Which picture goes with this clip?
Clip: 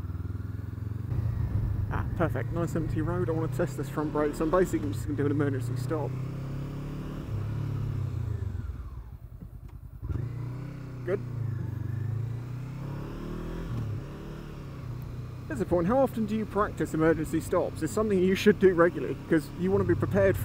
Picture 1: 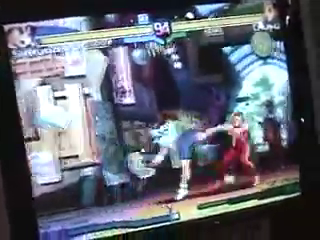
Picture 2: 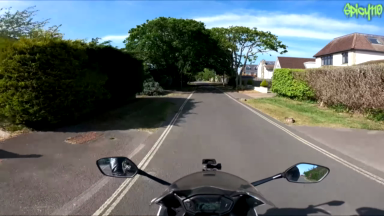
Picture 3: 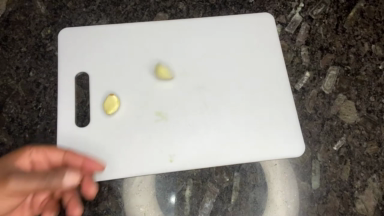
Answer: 2